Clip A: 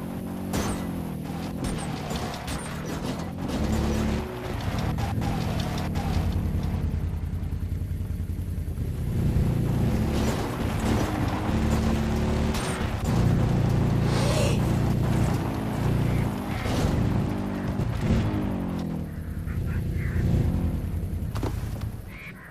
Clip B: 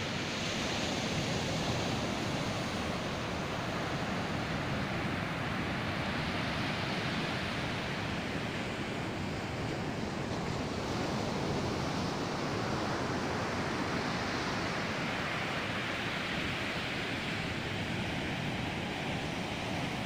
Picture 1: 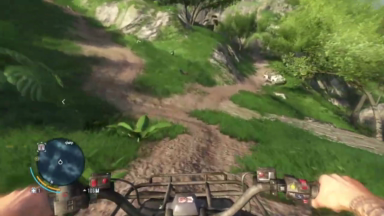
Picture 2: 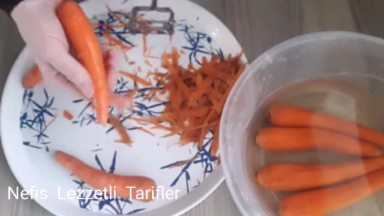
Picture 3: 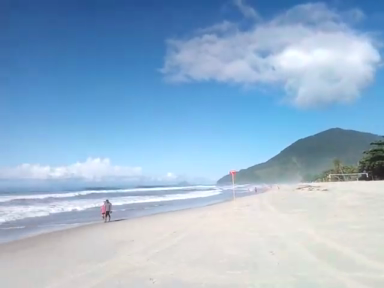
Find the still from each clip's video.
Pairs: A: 1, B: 3